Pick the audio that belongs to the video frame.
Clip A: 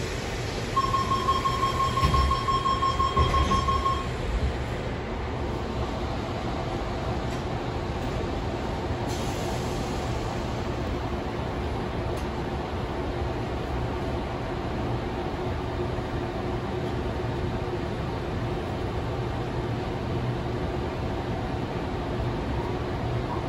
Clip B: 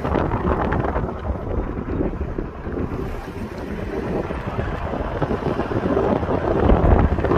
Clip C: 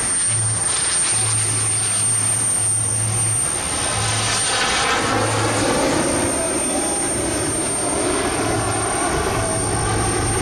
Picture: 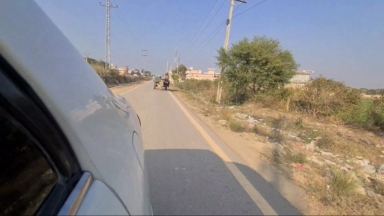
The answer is B